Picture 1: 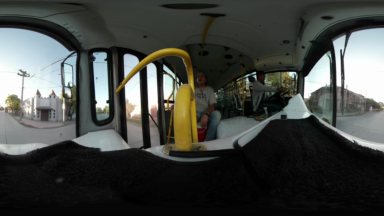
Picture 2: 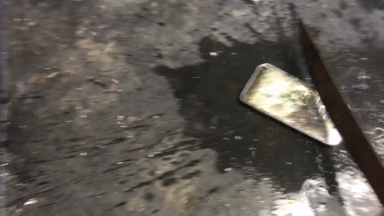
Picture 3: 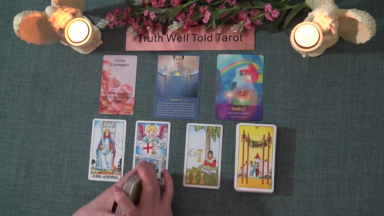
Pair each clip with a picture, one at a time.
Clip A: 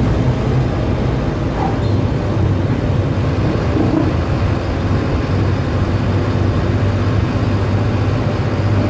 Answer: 1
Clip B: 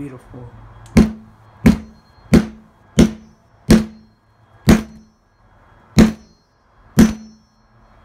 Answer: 2